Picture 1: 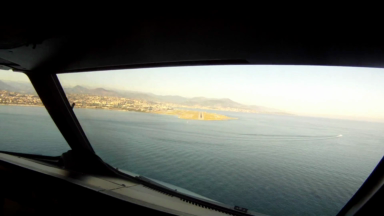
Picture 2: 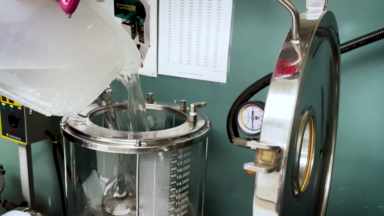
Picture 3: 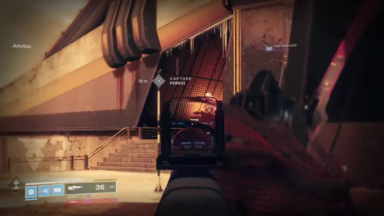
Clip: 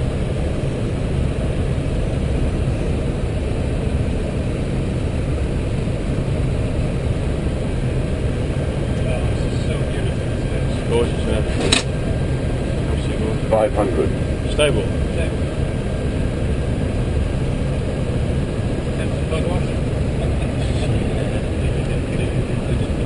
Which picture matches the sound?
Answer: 1